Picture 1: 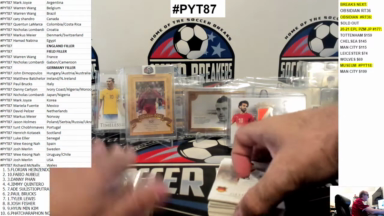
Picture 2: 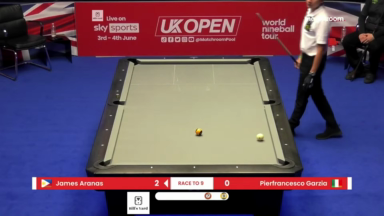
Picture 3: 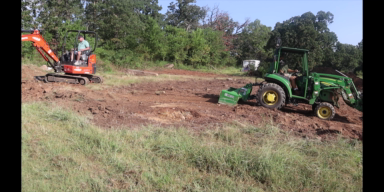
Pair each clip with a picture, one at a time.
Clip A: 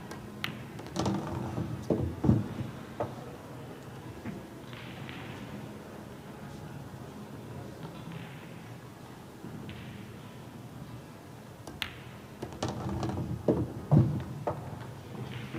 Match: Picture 2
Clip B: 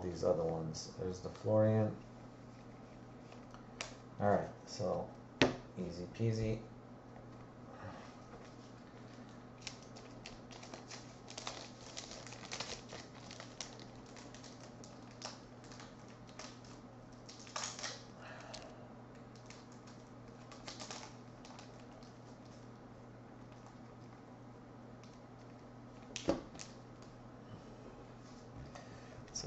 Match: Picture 1